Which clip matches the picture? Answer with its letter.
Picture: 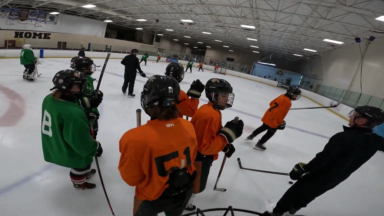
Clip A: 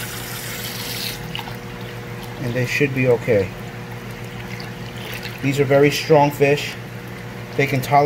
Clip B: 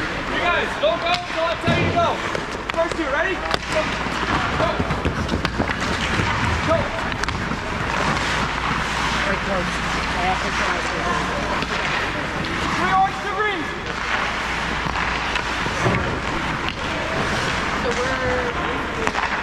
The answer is B